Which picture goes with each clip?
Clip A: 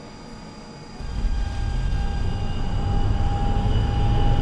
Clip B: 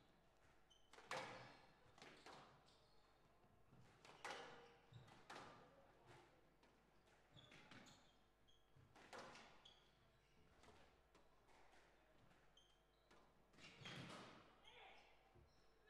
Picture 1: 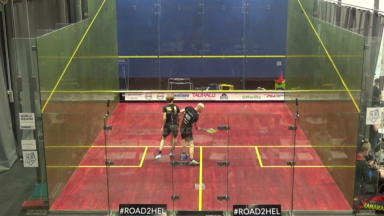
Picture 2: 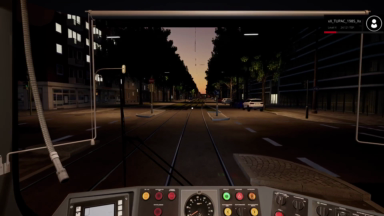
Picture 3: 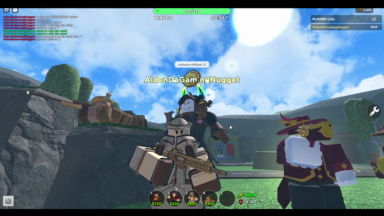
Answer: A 2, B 1